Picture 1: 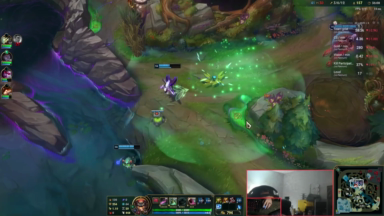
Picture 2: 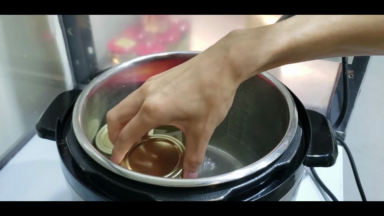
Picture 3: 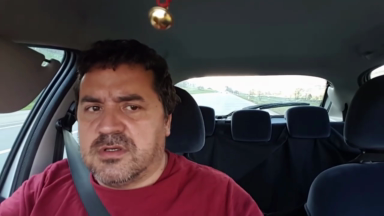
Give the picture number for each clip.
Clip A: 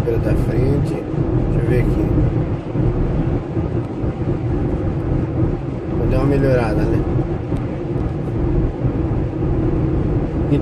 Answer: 3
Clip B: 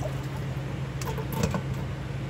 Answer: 2